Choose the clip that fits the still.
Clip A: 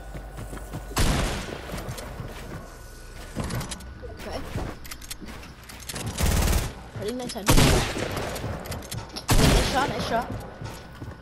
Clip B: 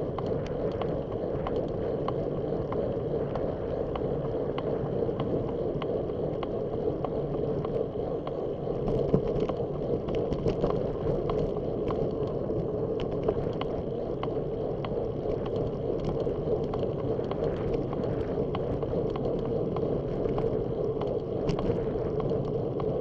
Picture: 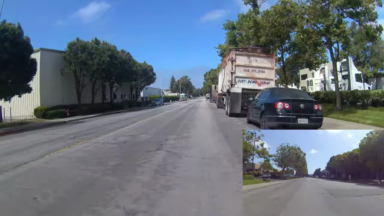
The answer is B